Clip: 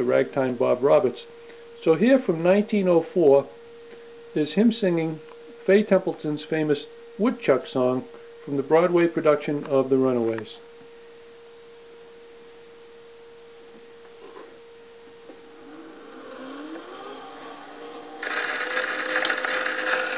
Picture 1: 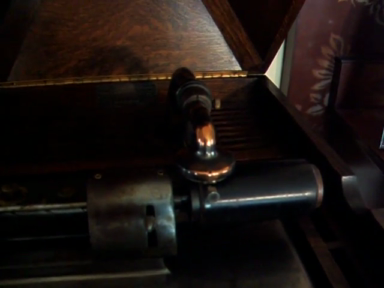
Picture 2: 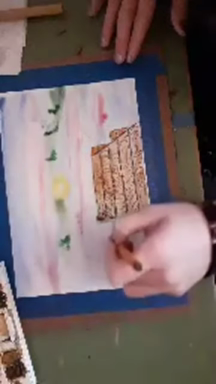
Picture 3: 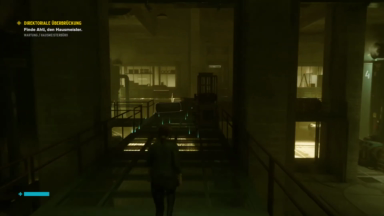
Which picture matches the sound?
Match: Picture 1